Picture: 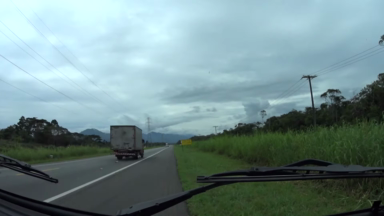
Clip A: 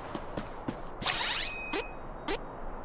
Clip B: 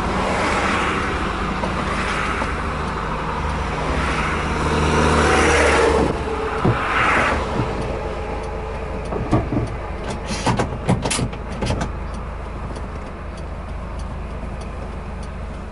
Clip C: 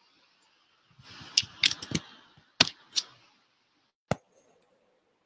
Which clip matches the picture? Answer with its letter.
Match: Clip B